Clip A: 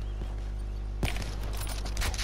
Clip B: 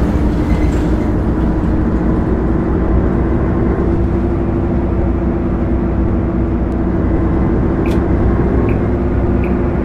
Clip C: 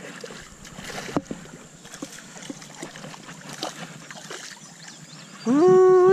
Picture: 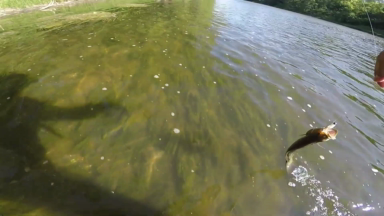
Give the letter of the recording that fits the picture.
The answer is C